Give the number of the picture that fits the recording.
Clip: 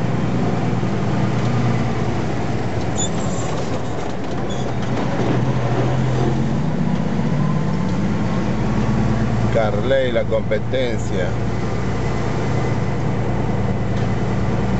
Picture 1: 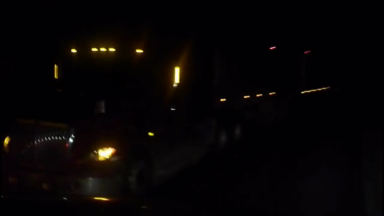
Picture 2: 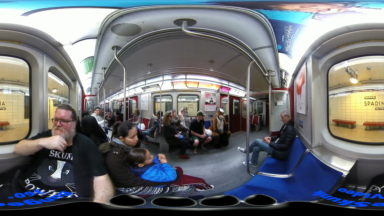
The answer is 1